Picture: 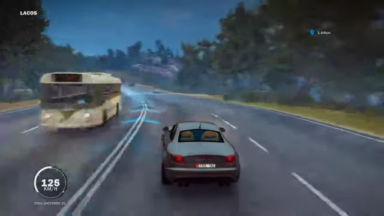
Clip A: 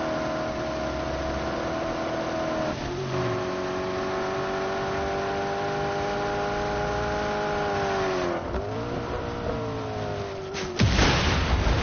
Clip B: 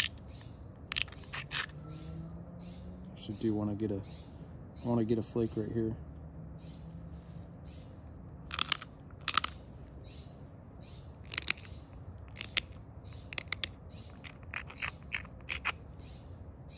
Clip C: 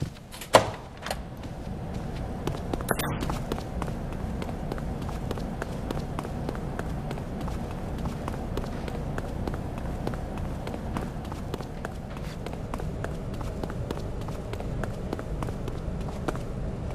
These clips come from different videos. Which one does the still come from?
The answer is A